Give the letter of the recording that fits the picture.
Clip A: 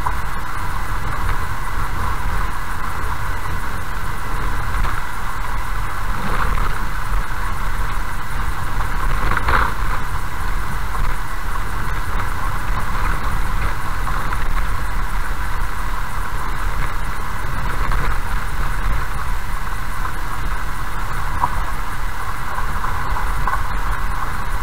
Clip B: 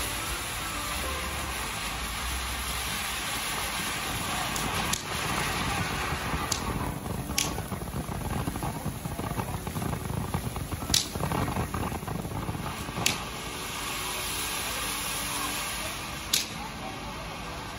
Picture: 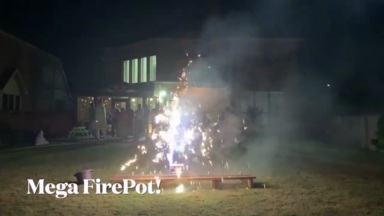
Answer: B